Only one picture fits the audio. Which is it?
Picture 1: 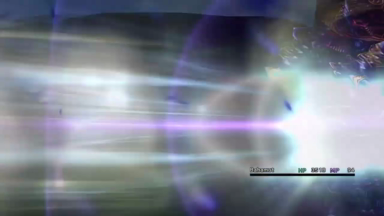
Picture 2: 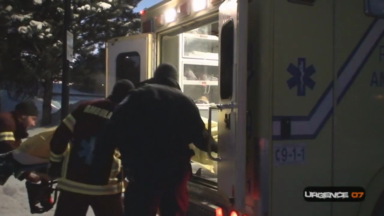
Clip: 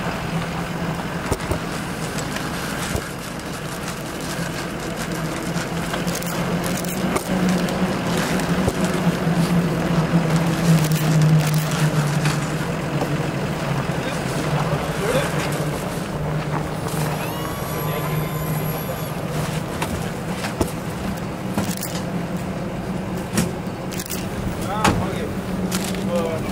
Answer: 2